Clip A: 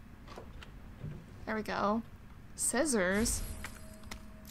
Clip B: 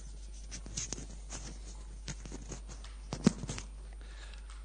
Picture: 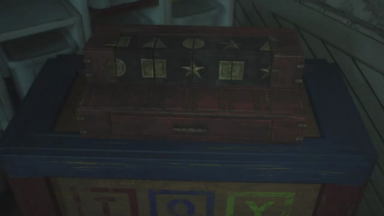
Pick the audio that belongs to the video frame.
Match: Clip A